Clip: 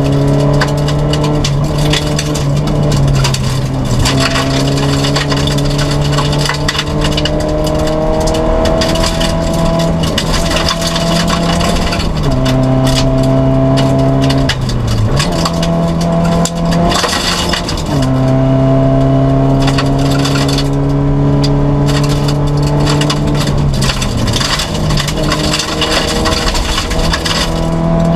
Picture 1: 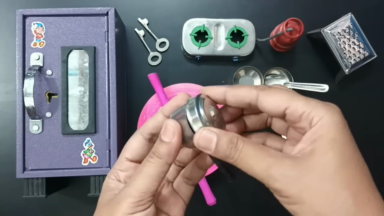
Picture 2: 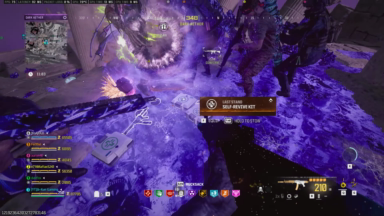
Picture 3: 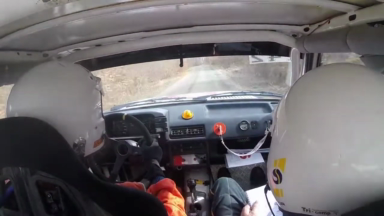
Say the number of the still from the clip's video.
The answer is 3